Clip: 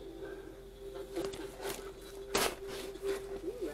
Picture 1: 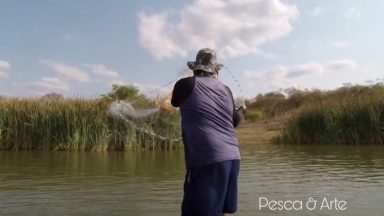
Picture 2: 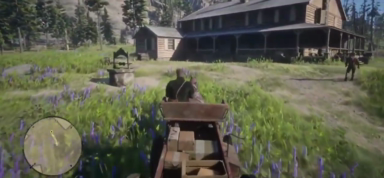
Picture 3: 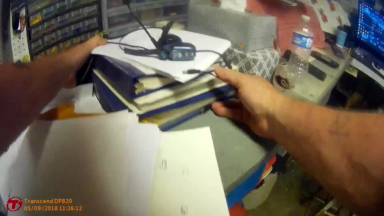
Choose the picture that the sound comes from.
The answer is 3